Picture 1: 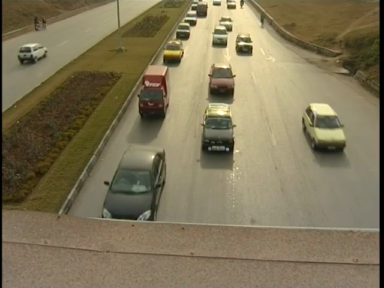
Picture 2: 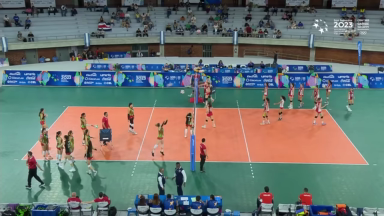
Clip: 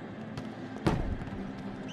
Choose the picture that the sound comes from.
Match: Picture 2